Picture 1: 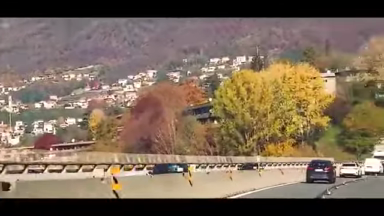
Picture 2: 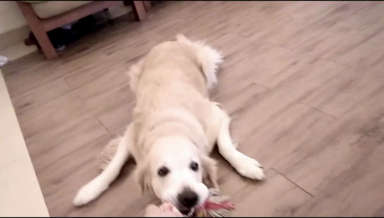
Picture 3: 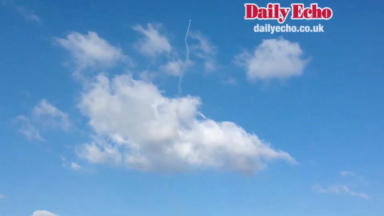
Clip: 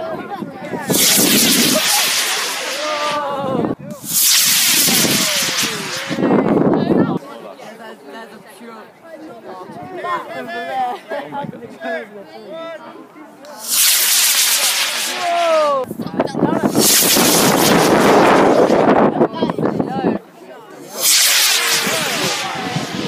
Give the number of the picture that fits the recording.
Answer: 3